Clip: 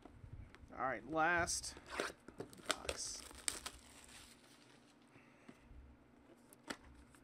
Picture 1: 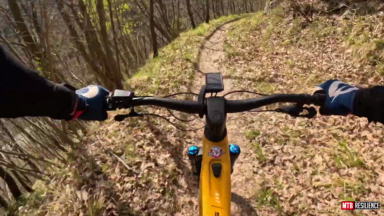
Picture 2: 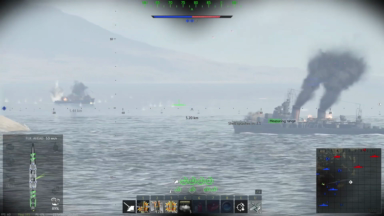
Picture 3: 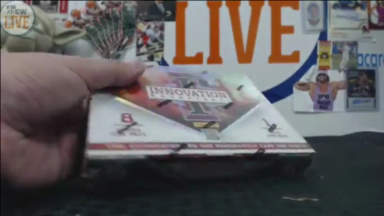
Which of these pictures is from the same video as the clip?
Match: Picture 3